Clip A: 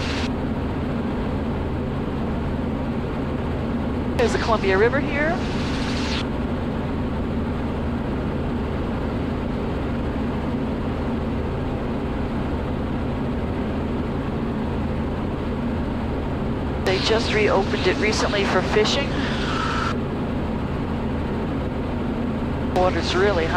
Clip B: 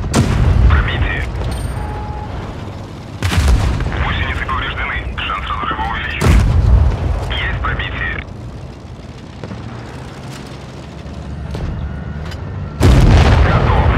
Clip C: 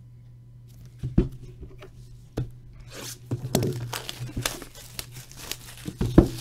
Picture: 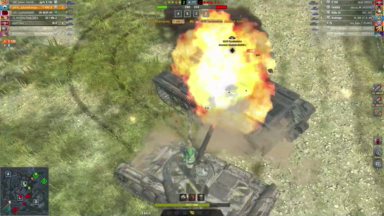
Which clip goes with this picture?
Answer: B